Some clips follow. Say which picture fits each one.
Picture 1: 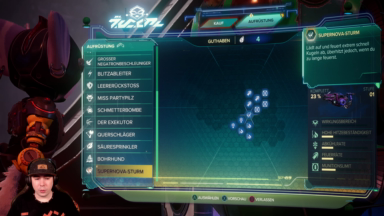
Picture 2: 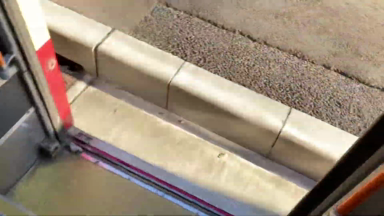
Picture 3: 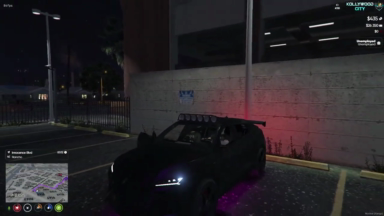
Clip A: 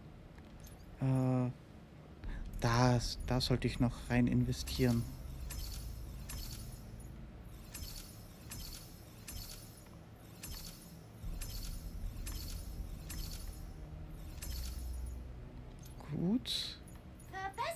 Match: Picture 1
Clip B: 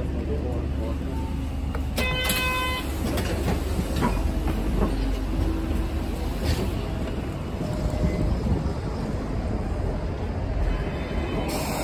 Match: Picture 2